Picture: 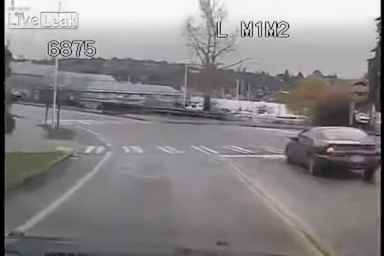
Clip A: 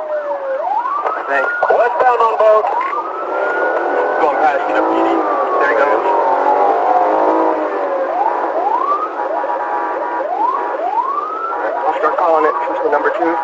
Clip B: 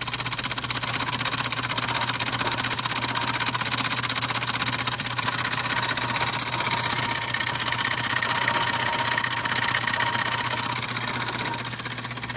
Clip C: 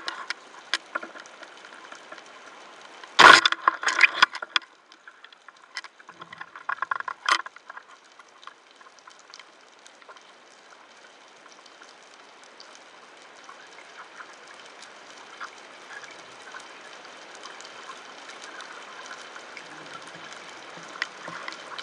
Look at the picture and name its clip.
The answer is A